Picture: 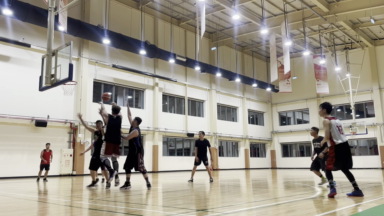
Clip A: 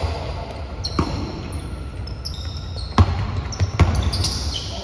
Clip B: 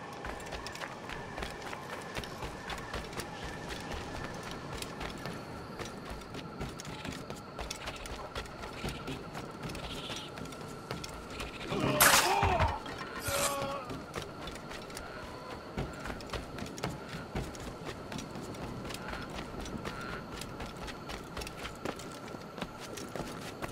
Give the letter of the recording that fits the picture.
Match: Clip A